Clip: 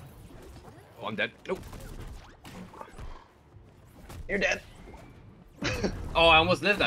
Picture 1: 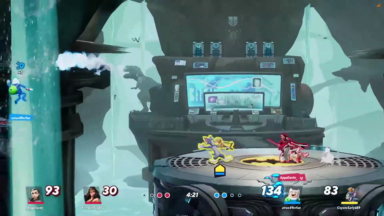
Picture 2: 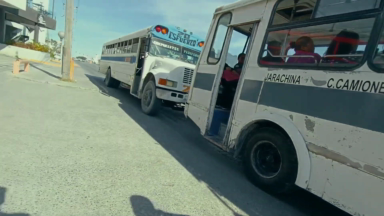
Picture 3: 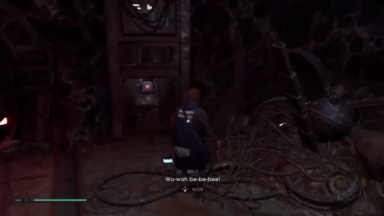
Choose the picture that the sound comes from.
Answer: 1